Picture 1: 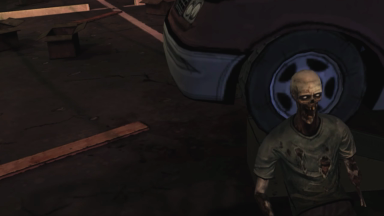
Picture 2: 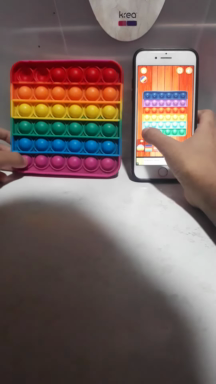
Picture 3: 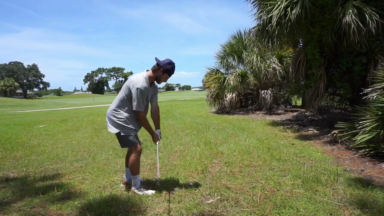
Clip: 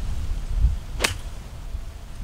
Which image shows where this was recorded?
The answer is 3